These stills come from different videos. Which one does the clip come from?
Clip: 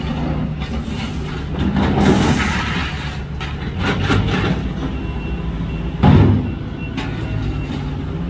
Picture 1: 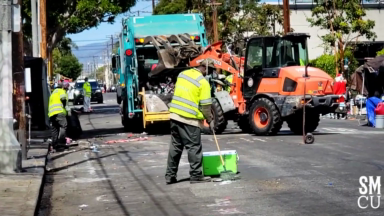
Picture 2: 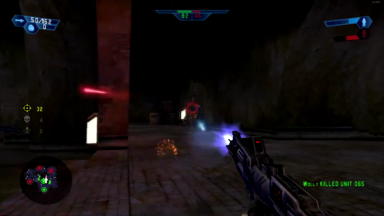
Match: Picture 1